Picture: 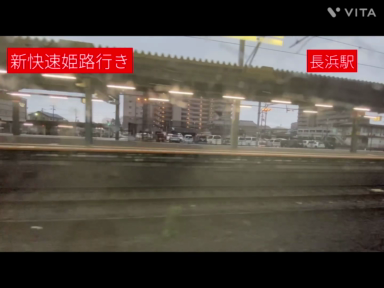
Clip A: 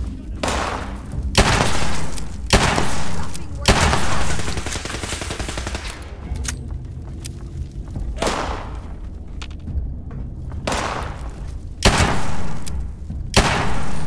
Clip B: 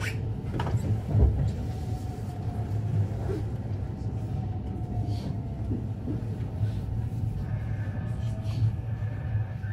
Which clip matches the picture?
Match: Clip B